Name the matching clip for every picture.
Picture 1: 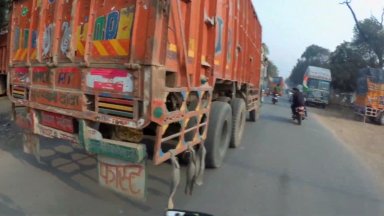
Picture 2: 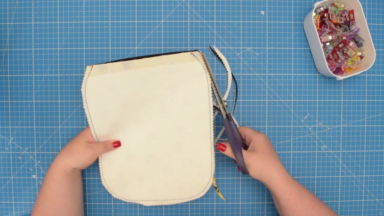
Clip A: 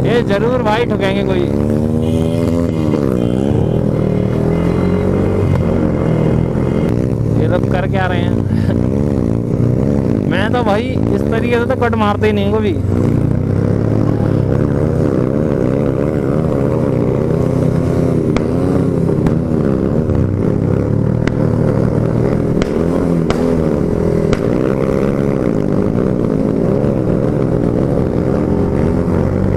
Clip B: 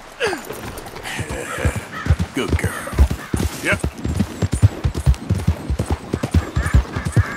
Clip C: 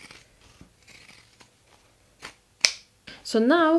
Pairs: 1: A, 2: C